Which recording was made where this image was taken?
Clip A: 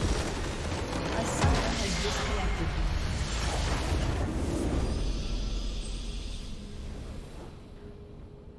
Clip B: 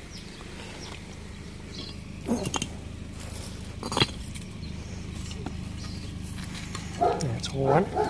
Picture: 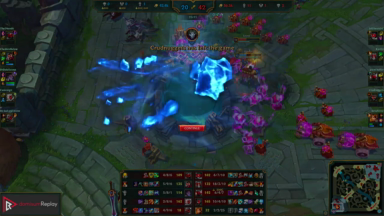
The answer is A